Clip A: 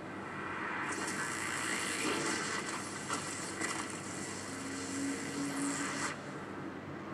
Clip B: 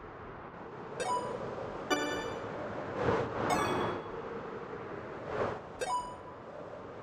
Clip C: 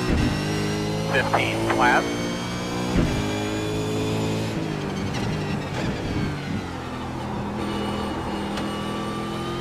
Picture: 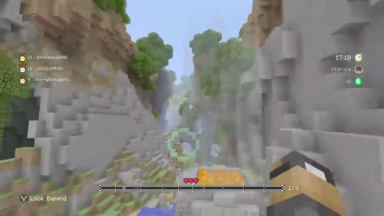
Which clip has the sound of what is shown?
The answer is B